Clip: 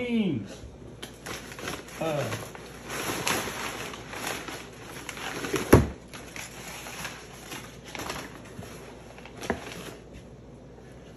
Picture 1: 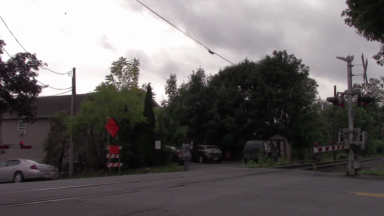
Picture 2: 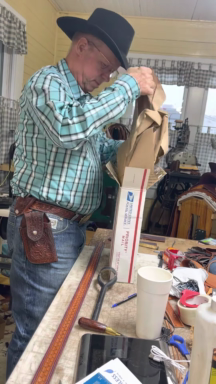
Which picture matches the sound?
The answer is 2